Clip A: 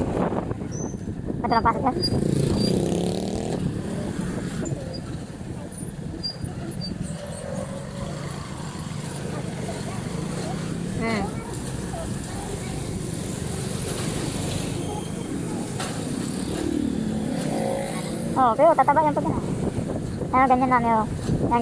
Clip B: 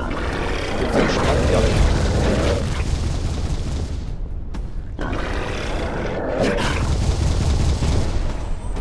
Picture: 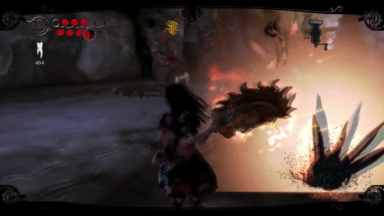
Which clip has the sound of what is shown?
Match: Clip B